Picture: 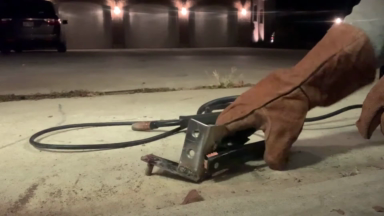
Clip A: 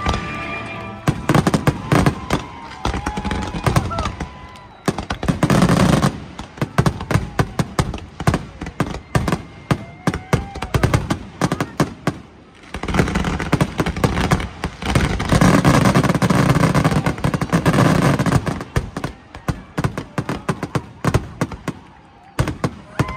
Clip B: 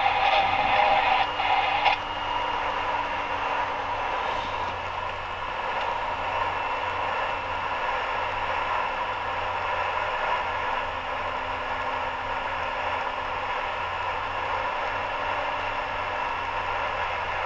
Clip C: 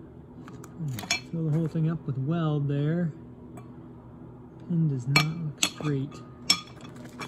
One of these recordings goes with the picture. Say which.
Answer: C